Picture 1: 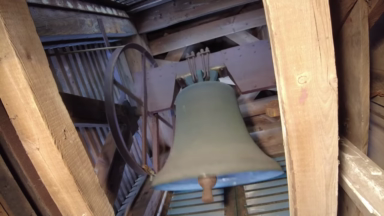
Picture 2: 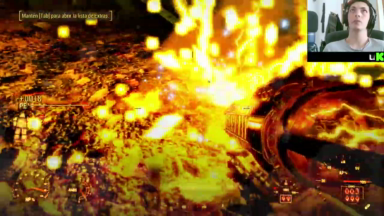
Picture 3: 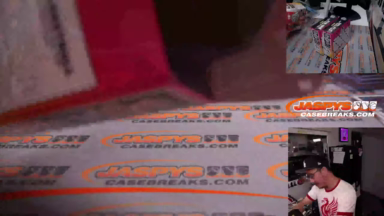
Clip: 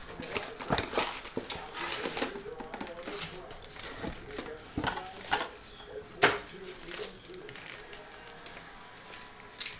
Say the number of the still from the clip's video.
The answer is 3